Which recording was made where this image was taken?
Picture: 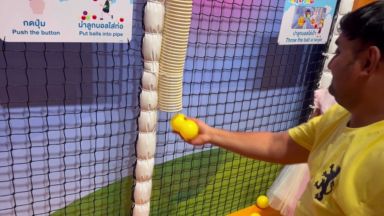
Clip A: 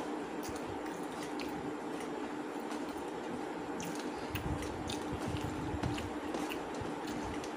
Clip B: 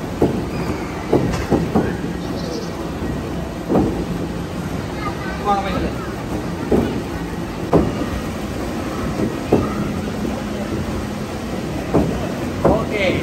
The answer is B